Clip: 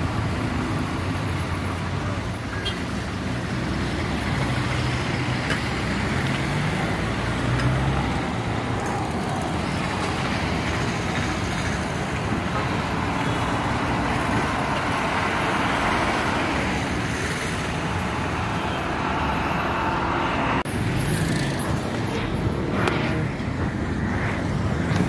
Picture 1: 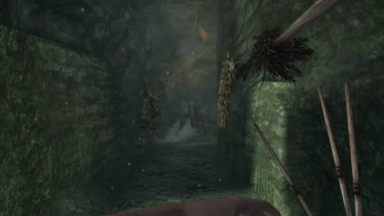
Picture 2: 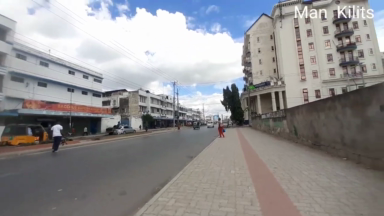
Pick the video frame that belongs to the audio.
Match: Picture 2